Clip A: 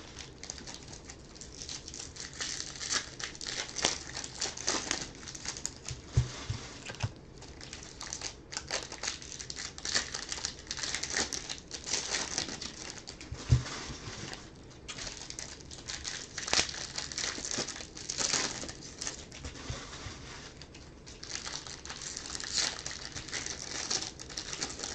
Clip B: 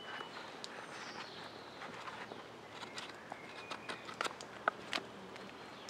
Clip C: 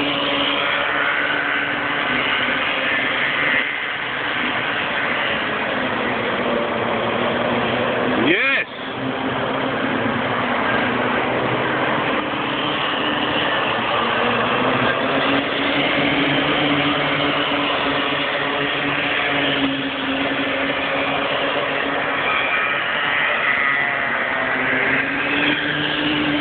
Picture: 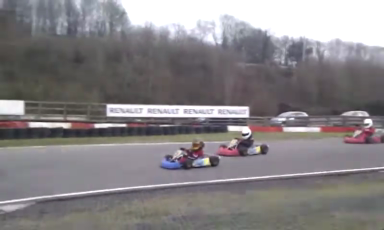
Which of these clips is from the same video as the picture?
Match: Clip C